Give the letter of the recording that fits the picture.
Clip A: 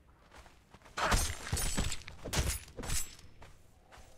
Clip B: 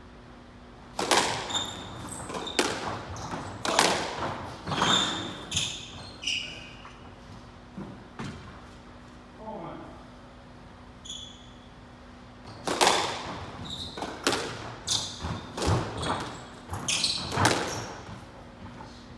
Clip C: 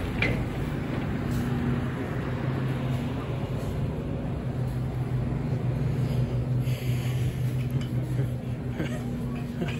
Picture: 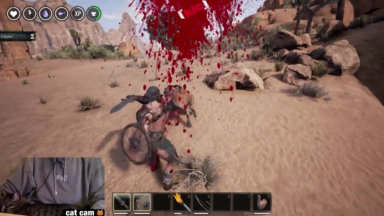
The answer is A